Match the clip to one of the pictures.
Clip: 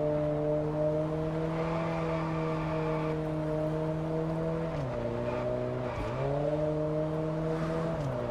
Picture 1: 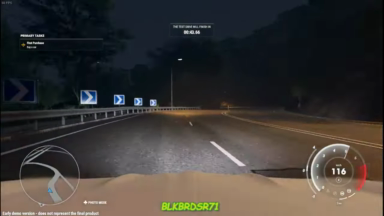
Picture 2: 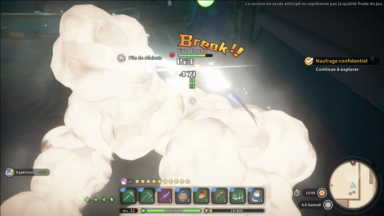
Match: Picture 1